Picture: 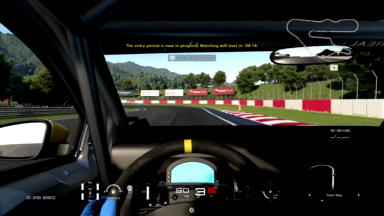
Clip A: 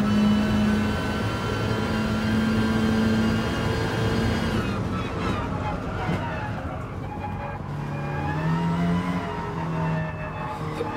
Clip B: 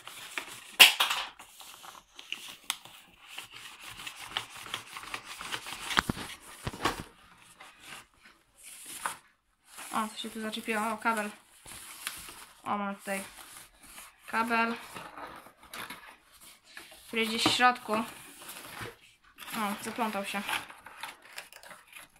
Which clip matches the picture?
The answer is A